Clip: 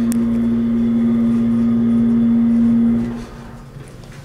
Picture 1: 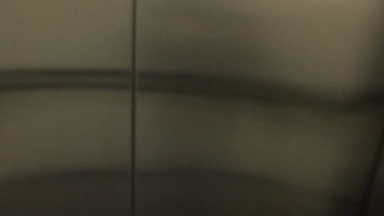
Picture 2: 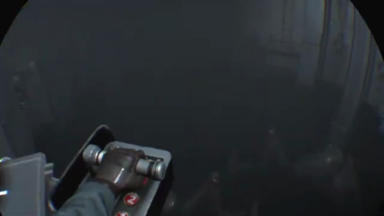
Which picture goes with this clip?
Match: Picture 1